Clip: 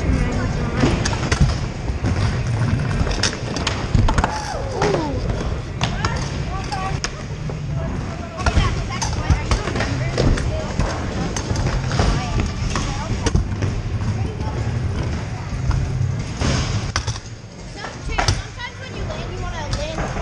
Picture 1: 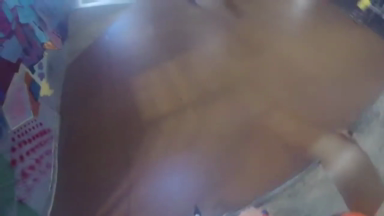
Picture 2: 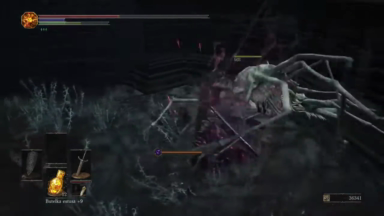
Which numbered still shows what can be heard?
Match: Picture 1